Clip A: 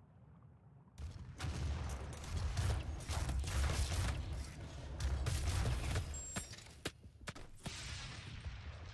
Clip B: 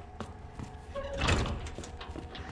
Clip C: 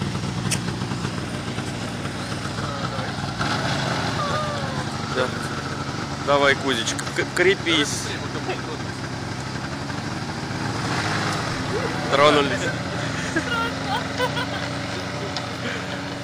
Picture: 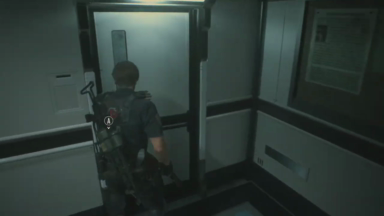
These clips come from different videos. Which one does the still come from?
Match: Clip B